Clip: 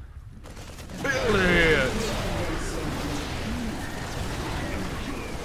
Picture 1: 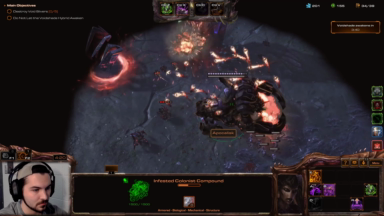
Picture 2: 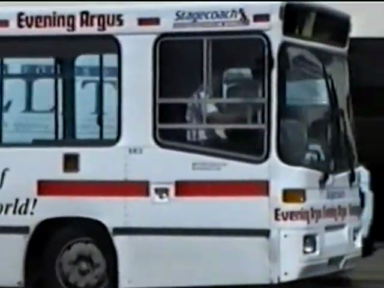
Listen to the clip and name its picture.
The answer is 1